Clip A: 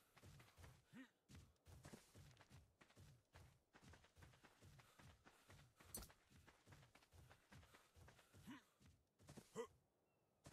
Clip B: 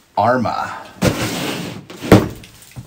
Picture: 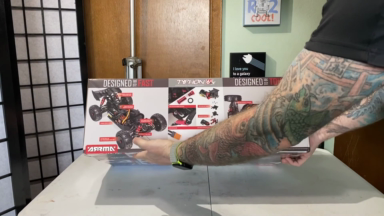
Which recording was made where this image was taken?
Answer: B